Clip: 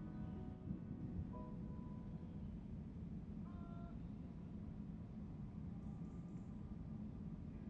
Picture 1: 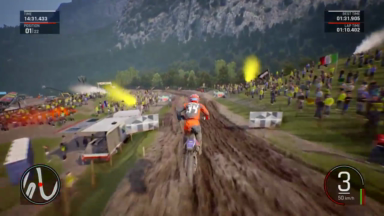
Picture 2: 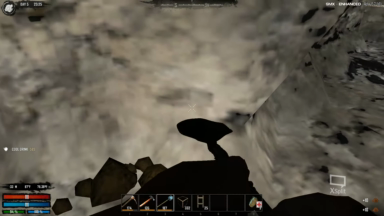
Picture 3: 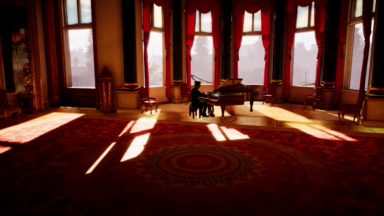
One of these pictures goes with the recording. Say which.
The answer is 3